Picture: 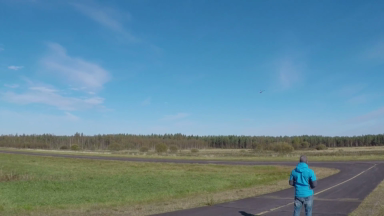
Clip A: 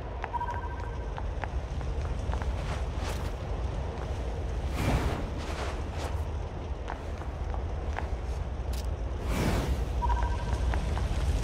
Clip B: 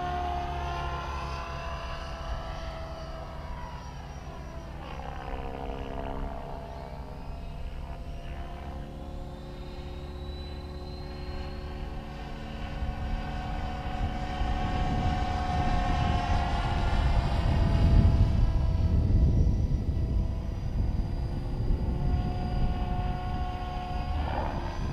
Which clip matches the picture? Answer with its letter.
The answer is B